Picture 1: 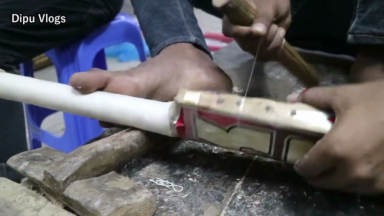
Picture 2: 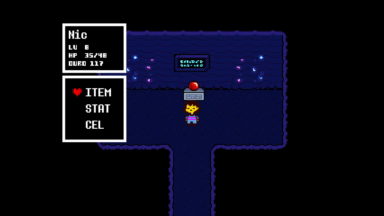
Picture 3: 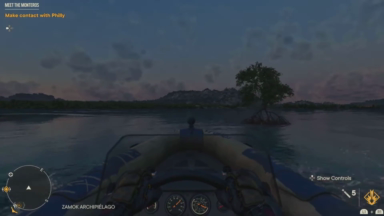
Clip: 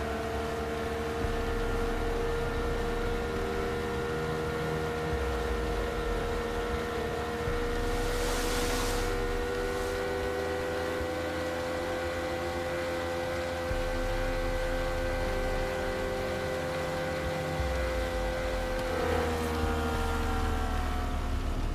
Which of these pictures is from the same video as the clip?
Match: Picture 3